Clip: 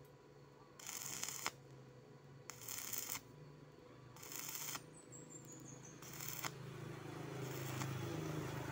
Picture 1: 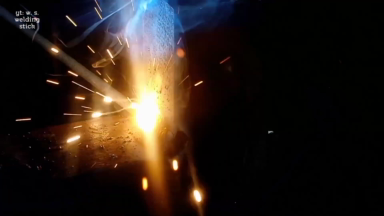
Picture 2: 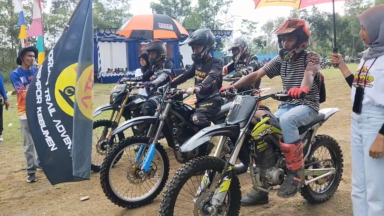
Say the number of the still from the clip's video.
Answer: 1